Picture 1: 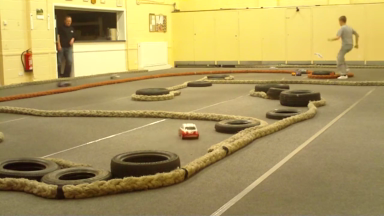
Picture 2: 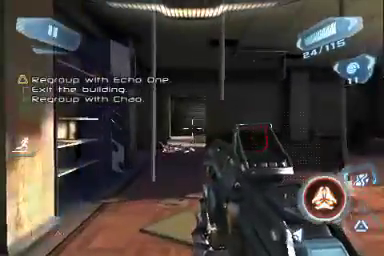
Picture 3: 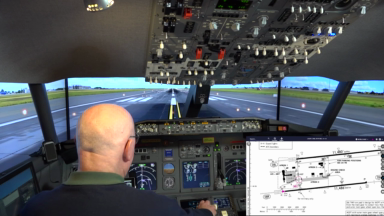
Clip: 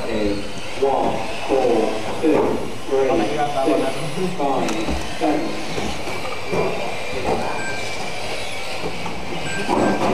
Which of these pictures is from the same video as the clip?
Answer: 1